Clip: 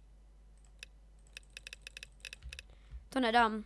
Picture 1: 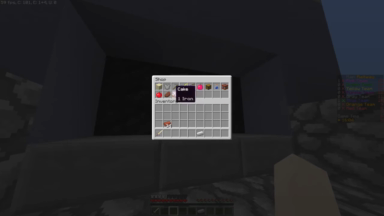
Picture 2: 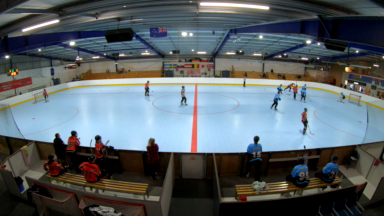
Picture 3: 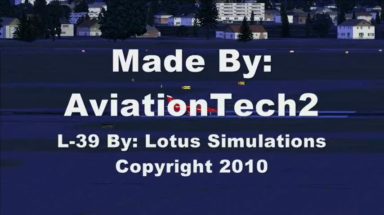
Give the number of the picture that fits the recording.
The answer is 1